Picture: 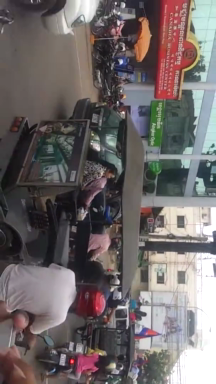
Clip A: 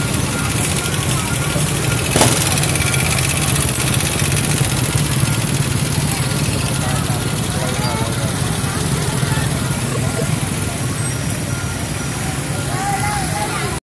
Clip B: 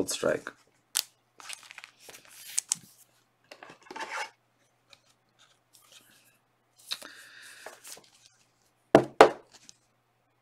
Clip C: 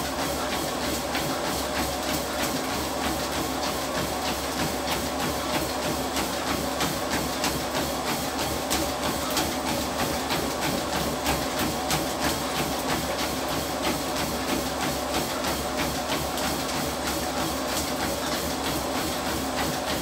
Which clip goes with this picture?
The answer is A